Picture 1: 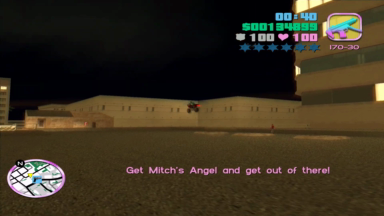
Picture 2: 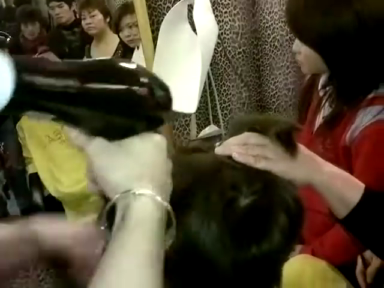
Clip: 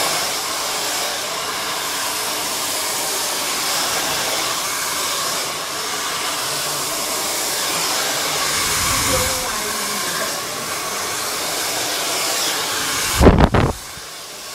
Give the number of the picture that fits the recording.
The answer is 2